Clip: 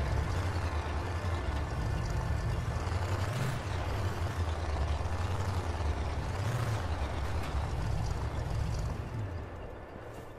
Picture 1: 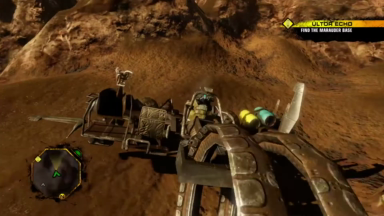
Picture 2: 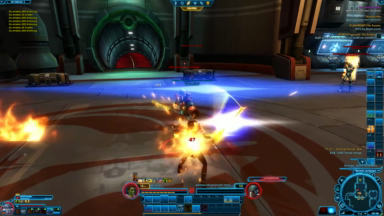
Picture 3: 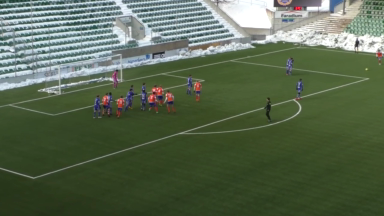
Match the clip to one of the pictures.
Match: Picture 1